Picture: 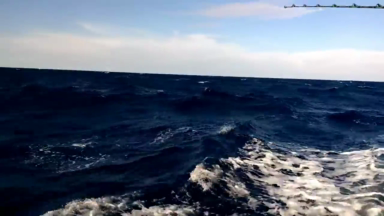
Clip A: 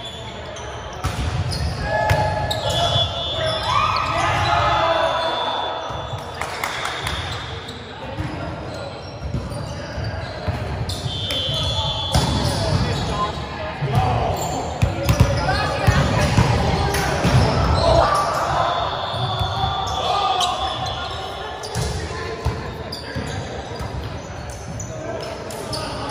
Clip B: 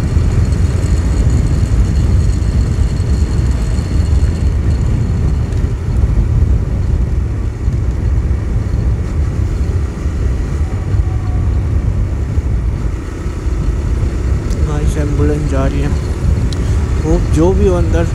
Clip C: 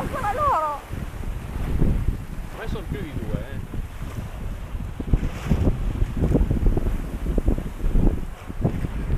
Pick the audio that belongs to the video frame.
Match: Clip C